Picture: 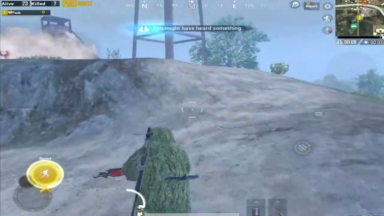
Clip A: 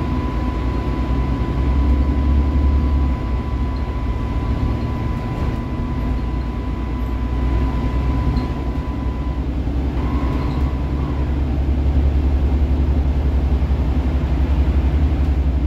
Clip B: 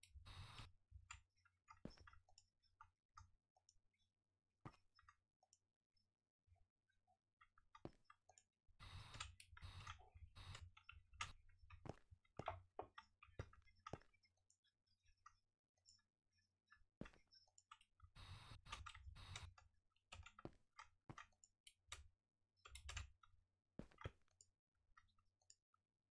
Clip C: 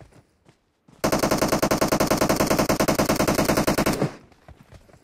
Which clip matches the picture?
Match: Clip C